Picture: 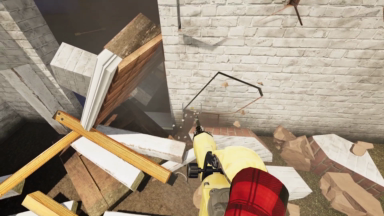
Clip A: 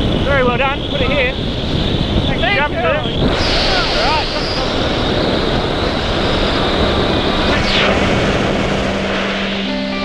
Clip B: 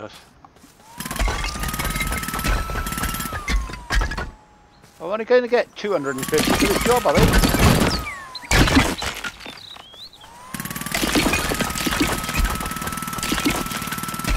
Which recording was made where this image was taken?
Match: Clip B